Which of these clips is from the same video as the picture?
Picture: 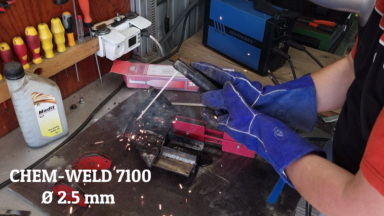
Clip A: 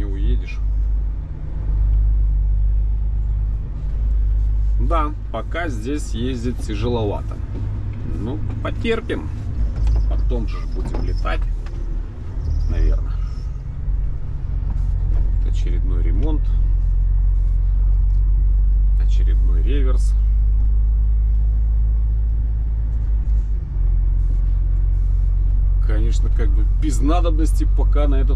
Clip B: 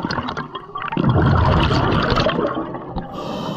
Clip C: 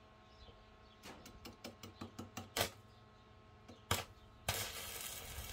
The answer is C